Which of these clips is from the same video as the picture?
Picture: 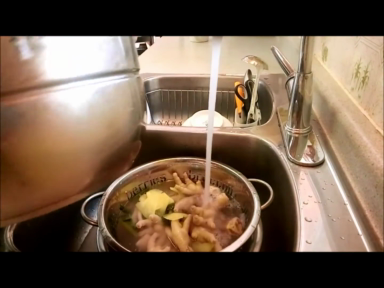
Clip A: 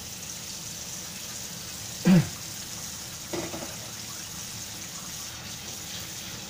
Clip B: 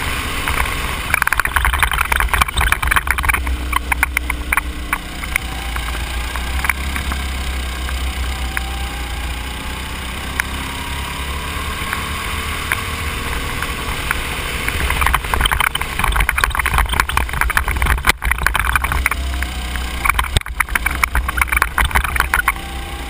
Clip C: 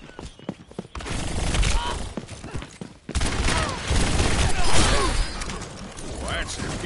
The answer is A